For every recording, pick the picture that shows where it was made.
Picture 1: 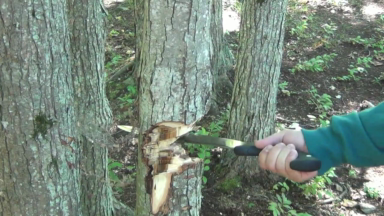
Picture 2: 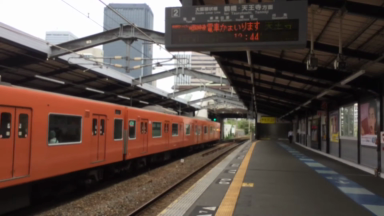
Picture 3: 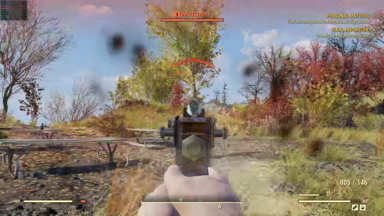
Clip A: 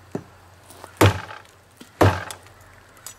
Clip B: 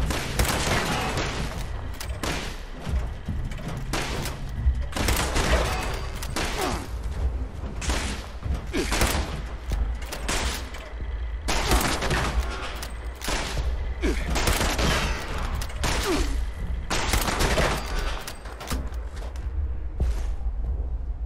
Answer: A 1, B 3